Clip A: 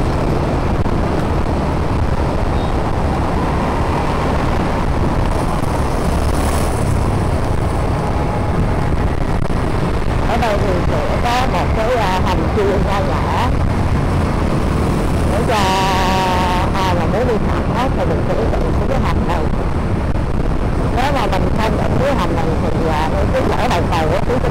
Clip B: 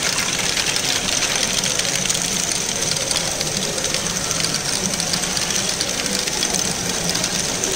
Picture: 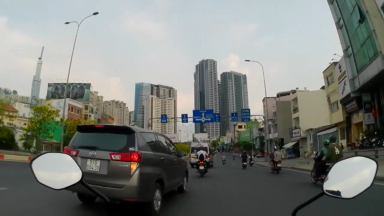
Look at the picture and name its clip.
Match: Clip A